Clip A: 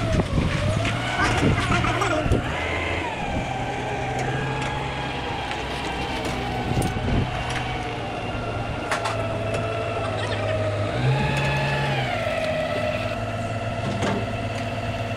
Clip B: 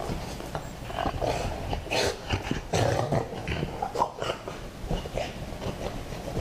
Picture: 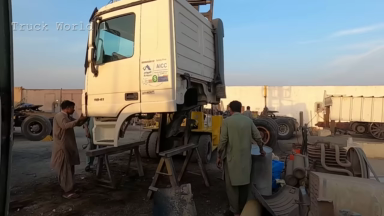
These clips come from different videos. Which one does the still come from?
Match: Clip A